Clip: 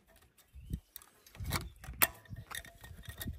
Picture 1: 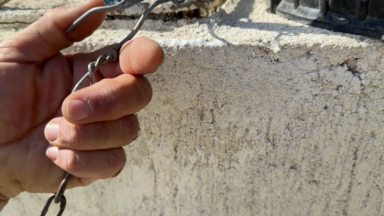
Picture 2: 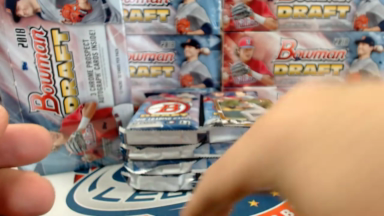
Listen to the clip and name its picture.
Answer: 1